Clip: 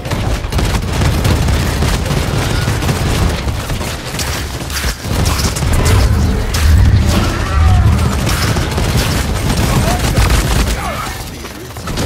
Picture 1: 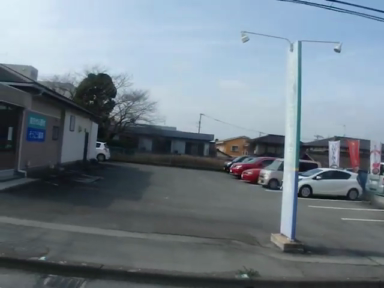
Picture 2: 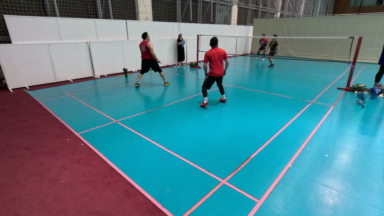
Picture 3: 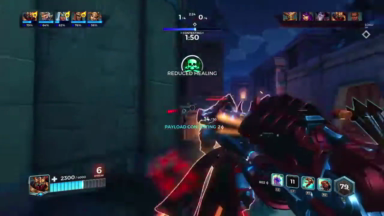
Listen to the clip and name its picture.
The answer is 3